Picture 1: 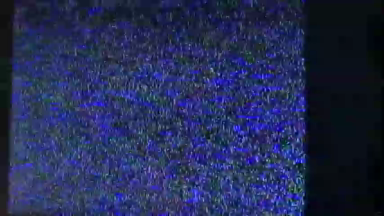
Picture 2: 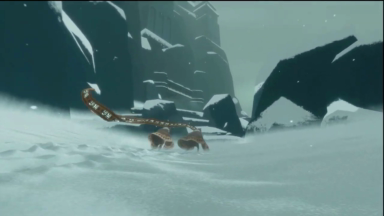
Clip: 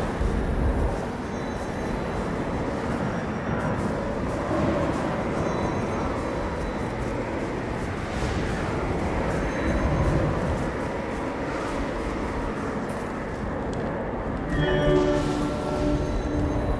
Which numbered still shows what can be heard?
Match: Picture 2